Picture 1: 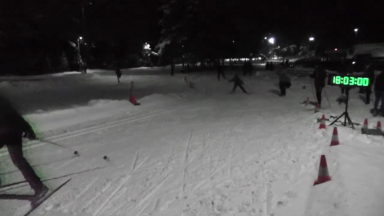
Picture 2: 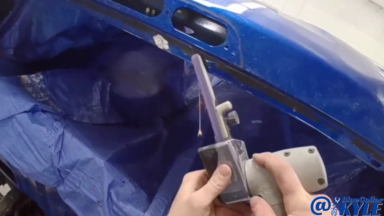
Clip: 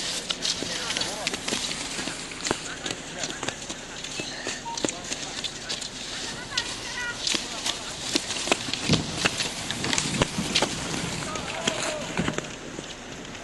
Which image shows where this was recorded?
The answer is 1